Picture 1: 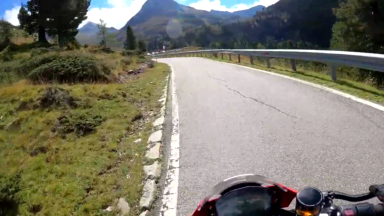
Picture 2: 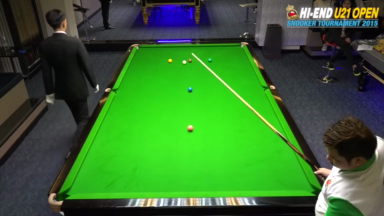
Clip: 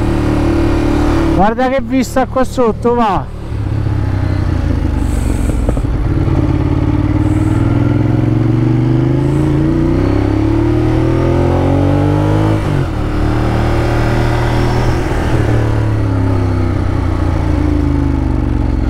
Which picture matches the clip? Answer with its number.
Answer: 1